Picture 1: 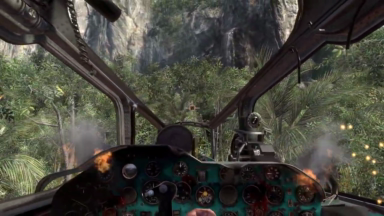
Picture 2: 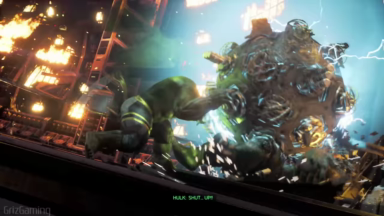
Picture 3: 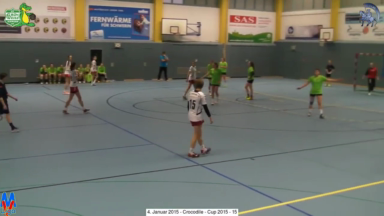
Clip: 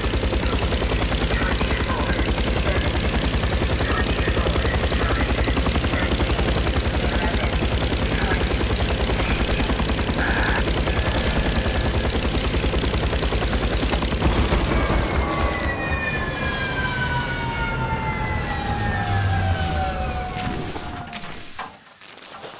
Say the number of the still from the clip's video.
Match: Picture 1